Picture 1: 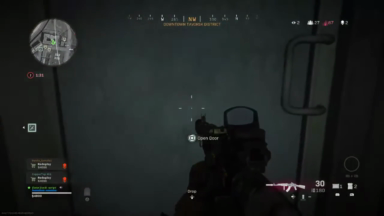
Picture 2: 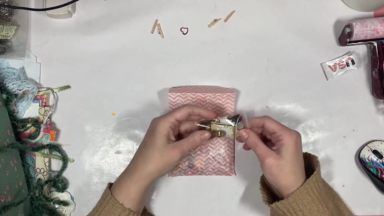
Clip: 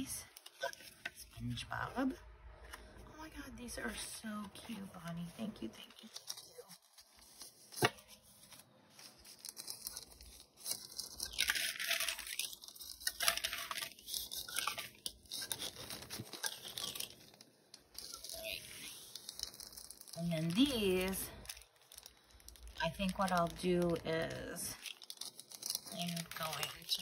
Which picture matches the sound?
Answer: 2